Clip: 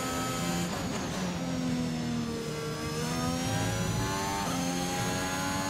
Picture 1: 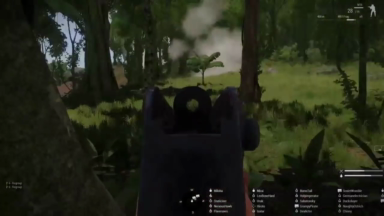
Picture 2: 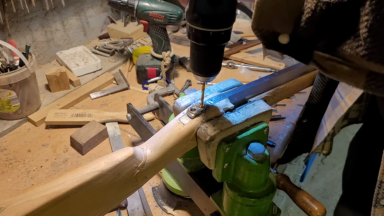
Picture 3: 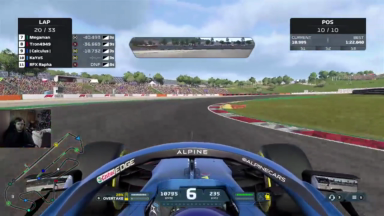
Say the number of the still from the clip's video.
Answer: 3